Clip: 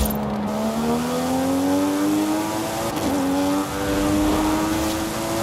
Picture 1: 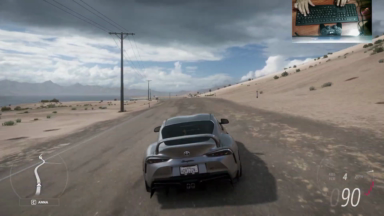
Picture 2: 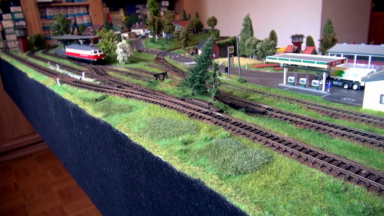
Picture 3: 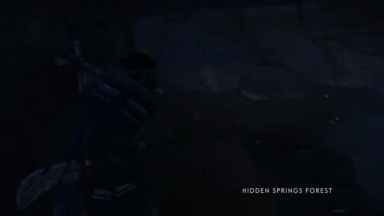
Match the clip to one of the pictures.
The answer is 1